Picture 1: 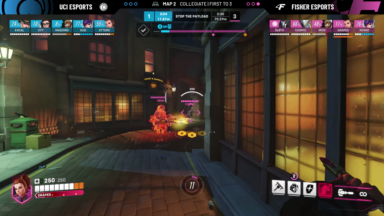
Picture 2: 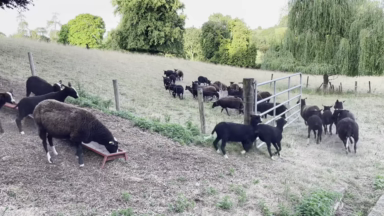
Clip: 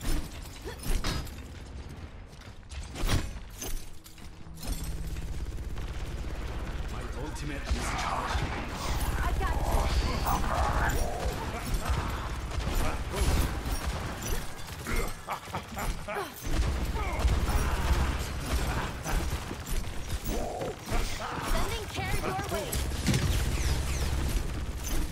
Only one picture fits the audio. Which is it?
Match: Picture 1